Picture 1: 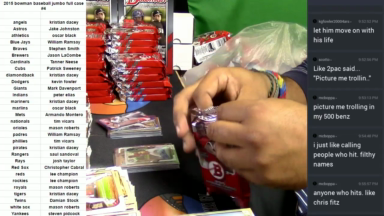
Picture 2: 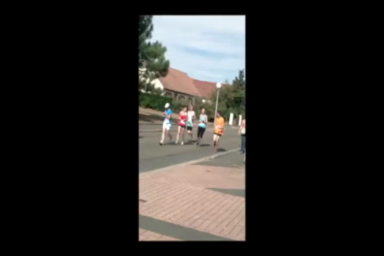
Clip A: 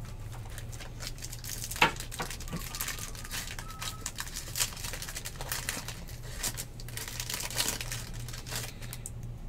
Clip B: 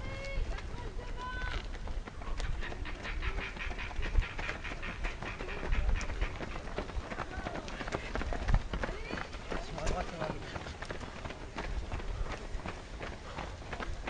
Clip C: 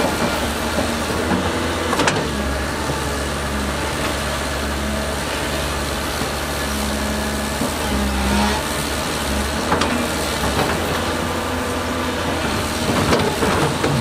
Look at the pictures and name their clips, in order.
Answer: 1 A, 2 B